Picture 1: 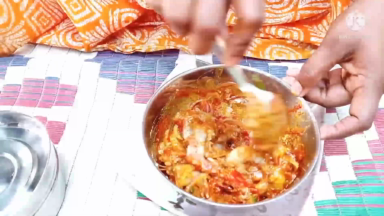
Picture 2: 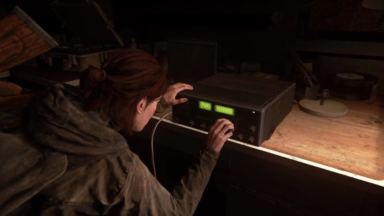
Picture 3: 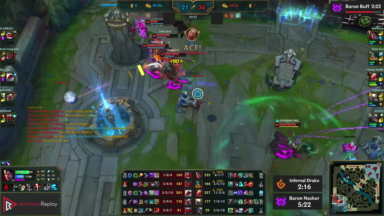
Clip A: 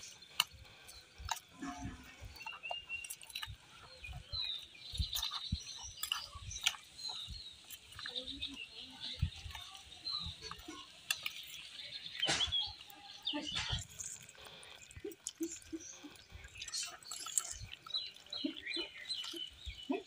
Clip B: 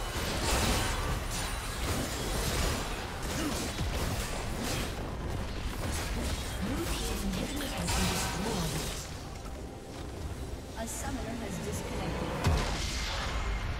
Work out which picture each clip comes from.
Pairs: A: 1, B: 3